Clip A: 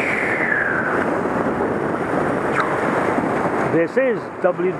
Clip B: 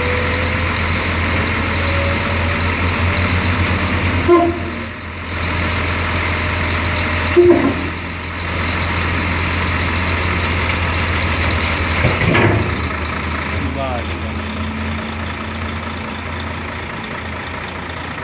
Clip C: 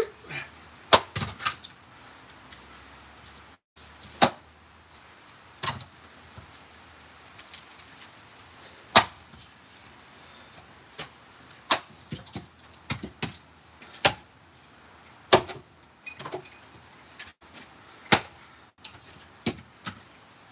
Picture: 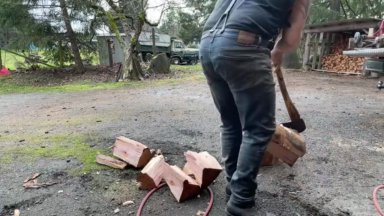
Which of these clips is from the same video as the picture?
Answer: C